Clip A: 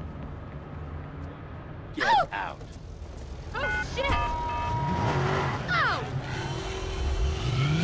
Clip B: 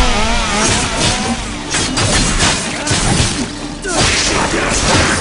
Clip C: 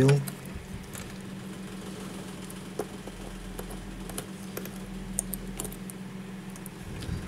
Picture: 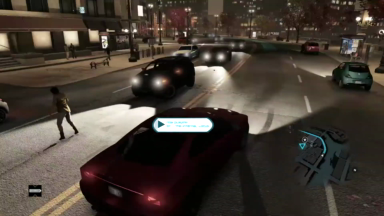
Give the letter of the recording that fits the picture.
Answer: A